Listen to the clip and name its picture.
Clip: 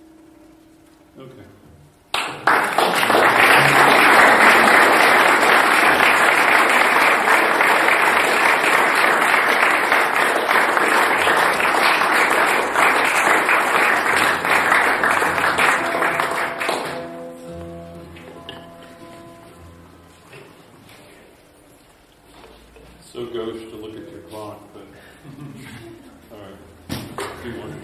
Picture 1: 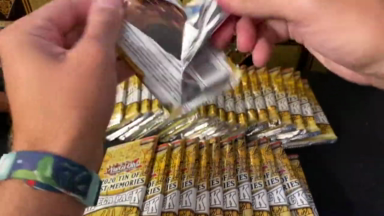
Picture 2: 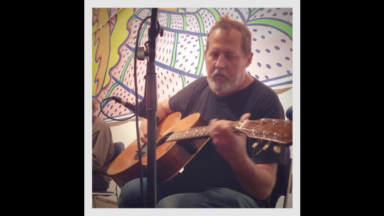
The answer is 2